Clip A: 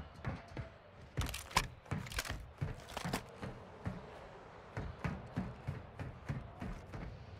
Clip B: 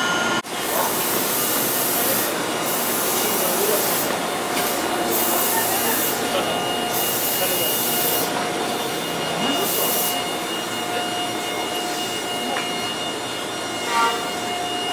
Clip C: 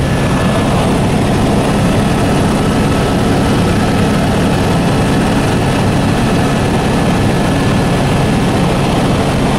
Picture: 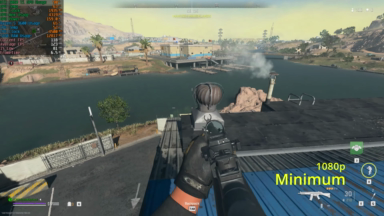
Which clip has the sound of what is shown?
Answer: A